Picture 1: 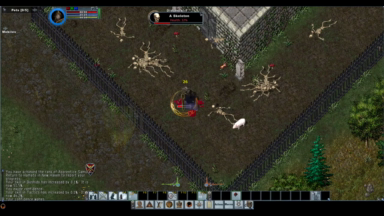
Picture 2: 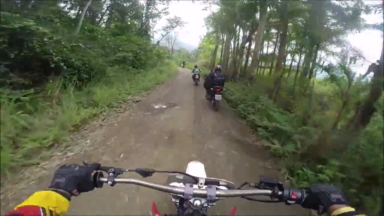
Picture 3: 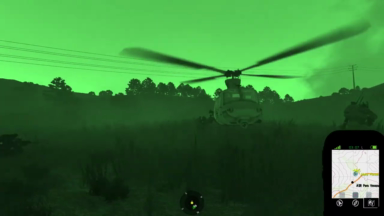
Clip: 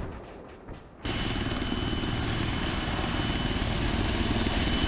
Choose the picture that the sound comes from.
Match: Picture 3